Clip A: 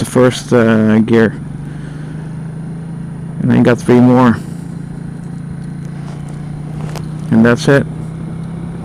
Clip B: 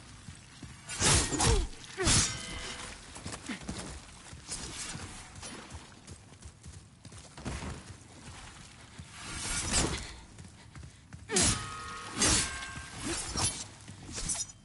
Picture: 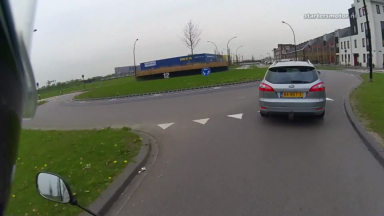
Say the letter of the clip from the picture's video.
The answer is A